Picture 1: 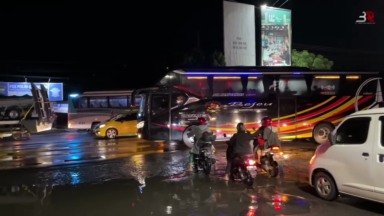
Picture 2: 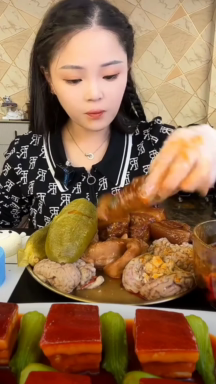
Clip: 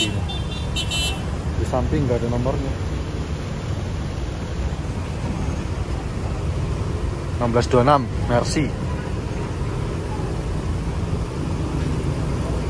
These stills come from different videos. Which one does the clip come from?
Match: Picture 1